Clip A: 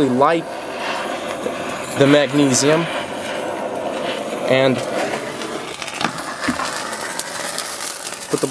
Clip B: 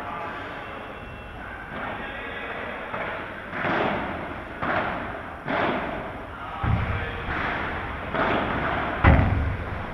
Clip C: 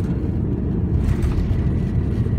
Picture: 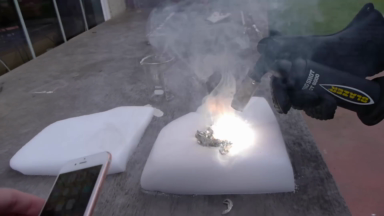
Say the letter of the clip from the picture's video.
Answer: A